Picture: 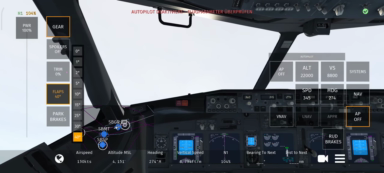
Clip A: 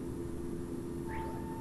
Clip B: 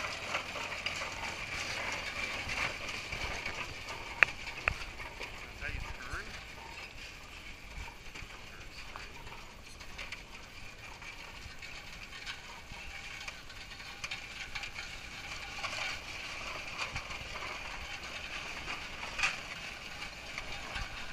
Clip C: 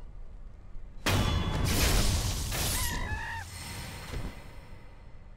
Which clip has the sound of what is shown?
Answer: A